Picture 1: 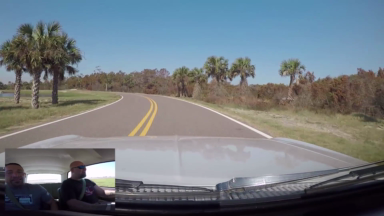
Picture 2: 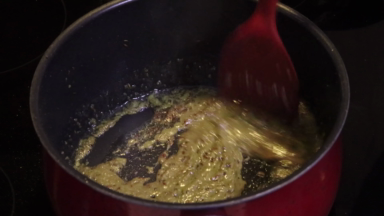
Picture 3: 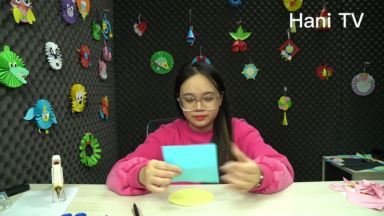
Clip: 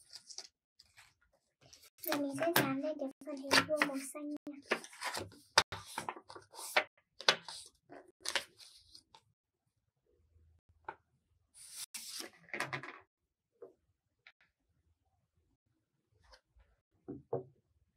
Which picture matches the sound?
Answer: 3